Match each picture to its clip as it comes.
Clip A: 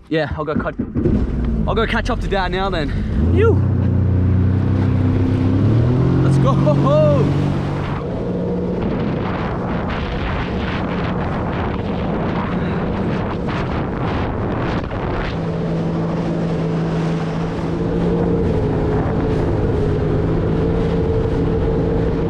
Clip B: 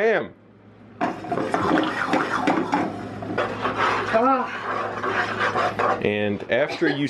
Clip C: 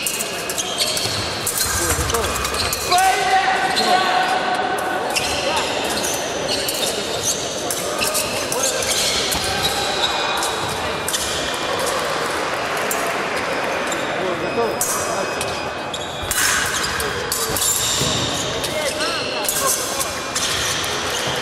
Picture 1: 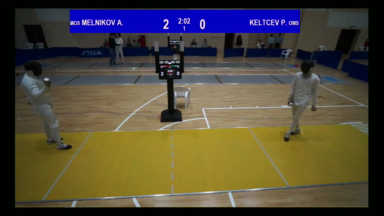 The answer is C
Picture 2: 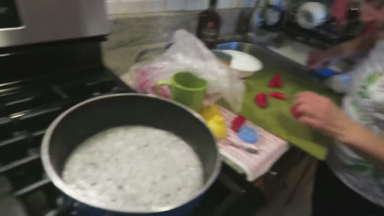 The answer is B